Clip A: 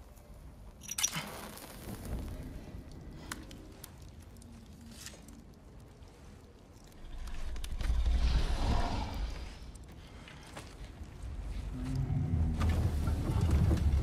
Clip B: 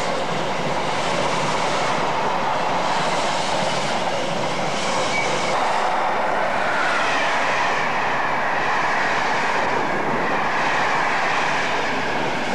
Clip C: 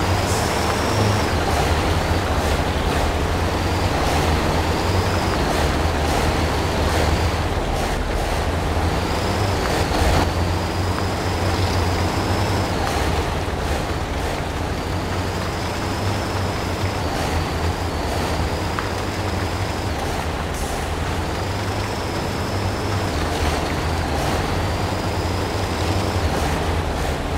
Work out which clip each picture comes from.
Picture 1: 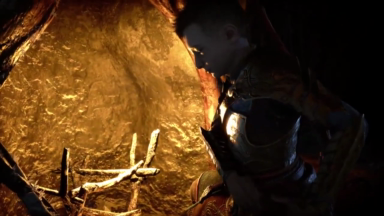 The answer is A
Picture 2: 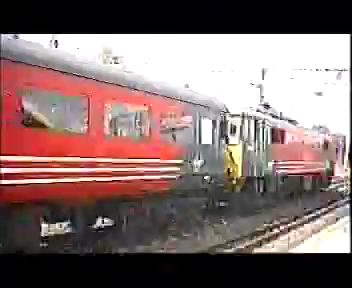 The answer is B